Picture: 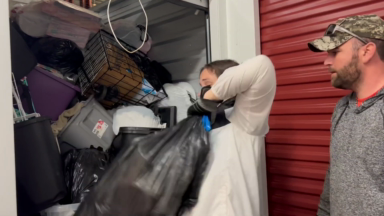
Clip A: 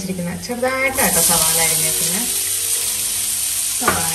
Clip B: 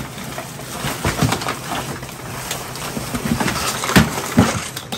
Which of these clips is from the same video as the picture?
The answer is B